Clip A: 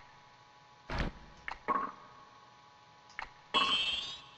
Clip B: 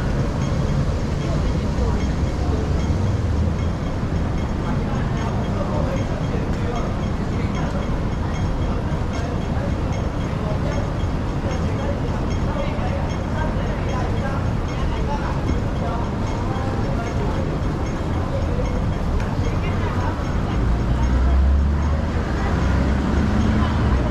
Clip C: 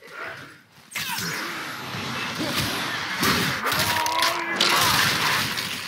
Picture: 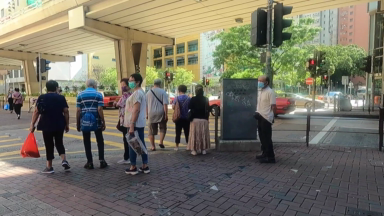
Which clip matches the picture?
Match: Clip B